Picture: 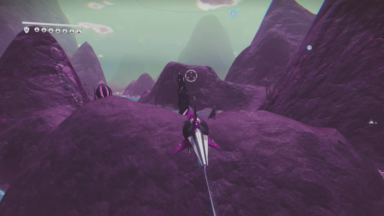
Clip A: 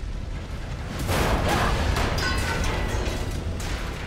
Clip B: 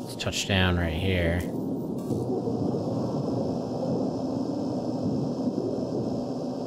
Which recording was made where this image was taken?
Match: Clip B